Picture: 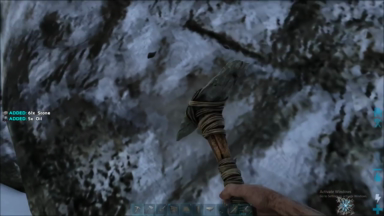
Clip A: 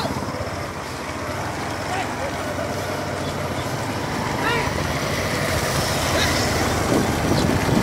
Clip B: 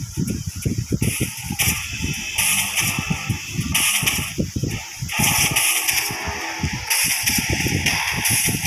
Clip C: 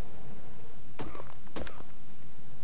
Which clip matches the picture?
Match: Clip C